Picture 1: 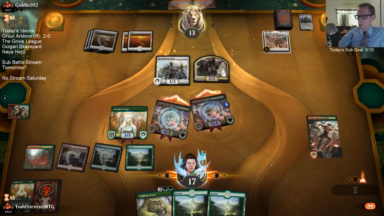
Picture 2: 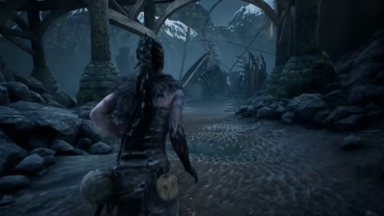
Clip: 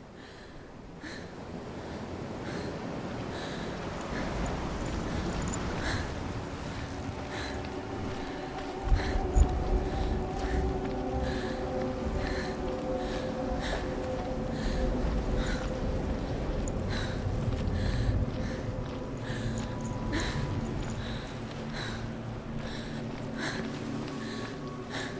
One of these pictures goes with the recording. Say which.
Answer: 2